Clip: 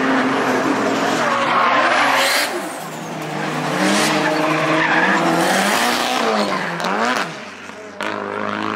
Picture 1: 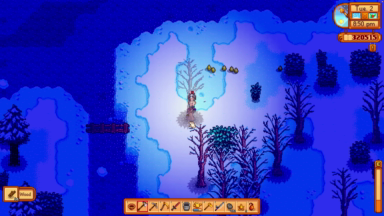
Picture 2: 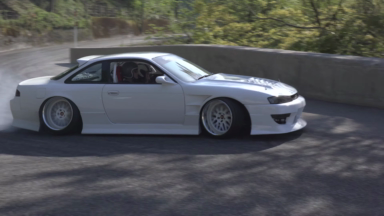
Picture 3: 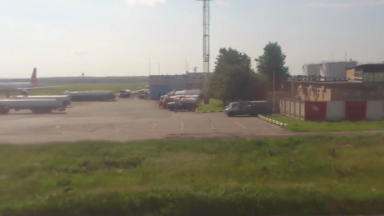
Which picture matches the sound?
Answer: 2